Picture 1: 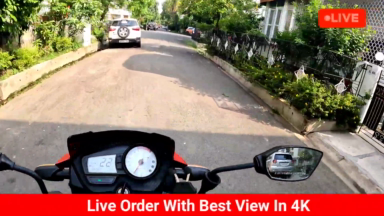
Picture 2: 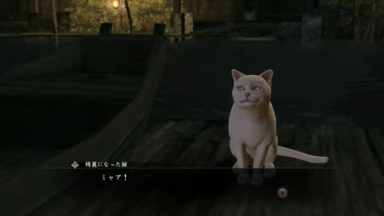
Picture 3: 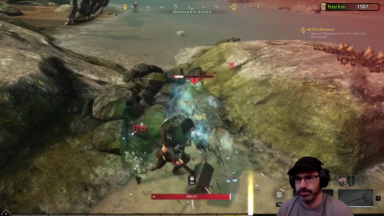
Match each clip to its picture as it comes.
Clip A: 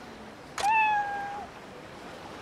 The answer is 2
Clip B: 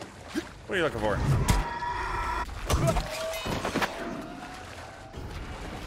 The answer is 3